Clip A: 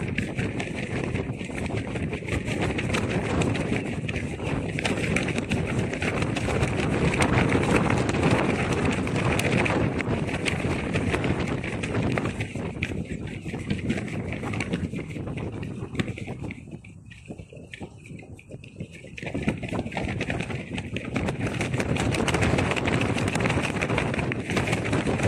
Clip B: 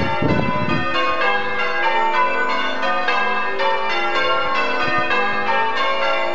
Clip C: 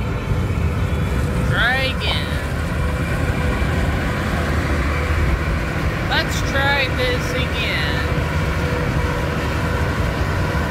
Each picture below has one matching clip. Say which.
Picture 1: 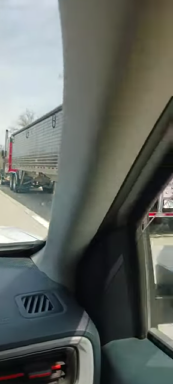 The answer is C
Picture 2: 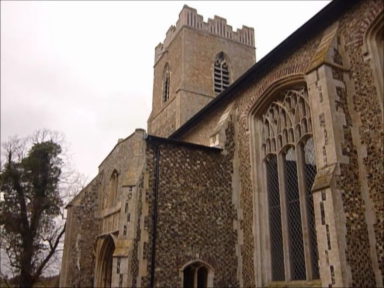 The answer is B